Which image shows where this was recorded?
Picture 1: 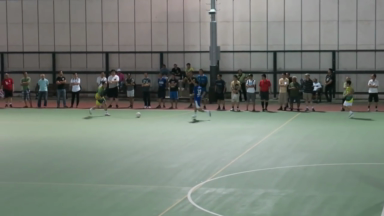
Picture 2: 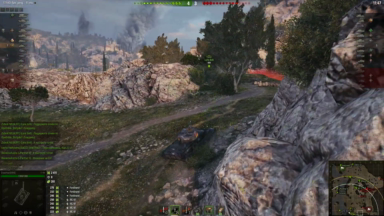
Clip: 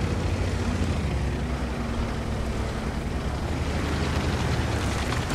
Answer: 2